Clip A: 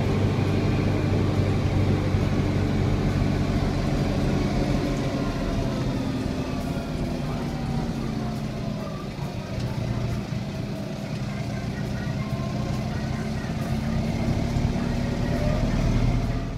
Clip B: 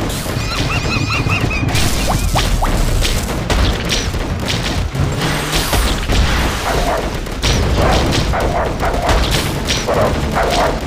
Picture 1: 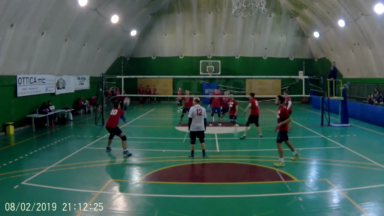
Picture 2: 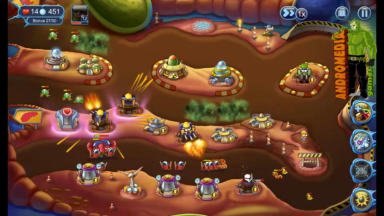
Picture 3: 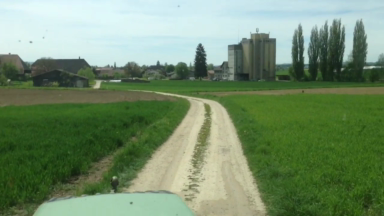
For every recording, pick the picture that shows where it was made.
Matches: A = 3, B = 2